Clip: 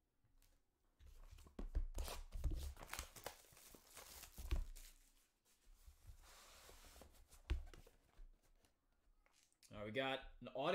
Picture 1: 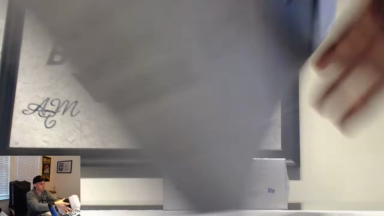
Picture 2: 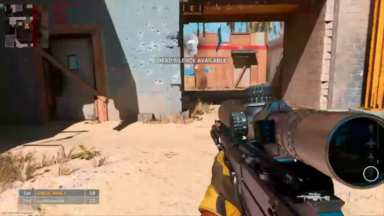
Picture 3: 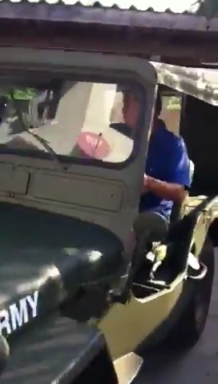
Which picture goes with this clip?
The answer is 1